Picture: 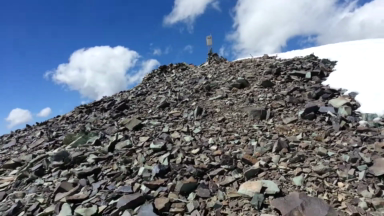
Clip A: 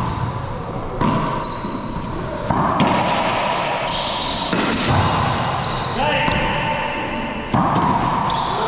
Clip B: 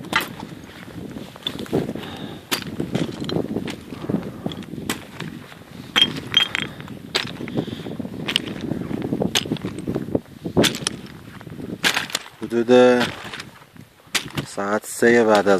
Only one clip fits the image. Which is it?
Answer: B